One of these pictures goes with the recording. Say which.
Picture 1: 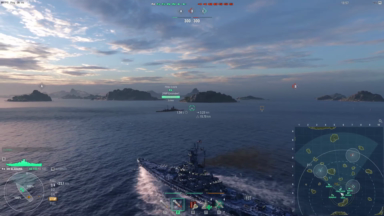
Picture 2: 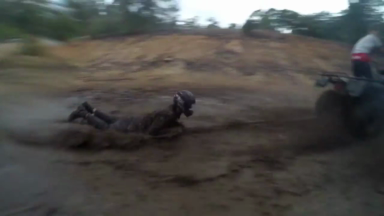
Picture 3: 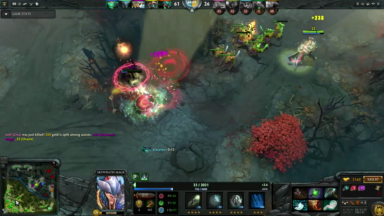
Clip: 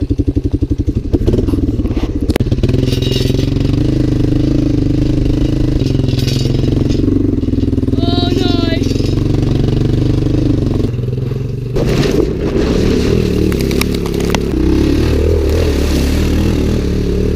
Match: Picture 2